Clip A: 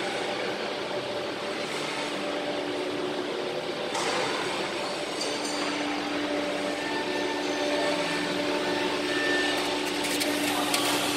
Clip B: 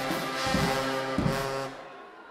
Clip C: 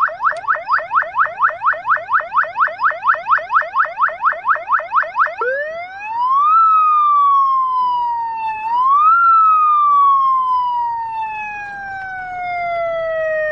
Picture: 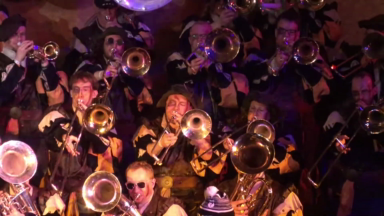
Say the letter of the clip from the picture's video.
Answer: B